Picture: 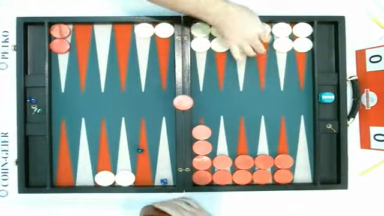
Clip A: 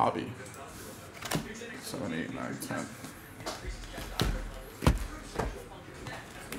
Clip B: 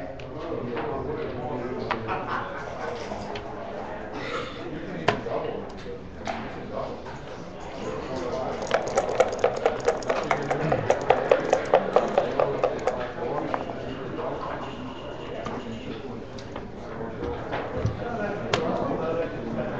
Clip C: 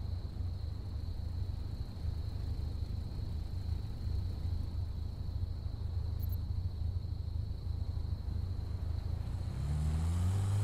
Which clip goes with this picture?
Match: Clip B